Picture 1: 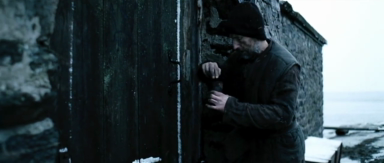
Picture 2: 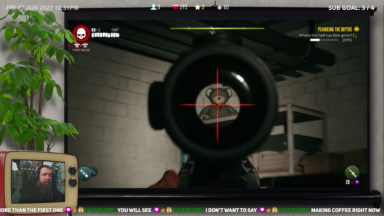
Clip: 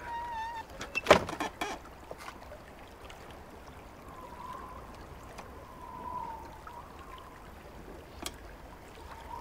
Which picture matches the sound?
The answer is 1